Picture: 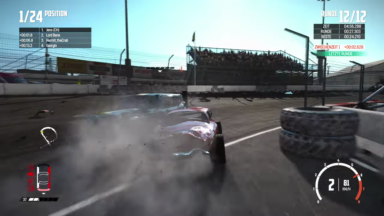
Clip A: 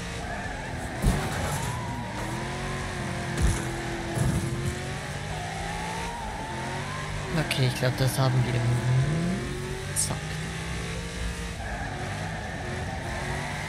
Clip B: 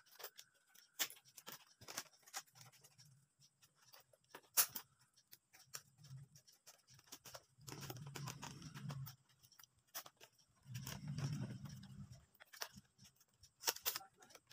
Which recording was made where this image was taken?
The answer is A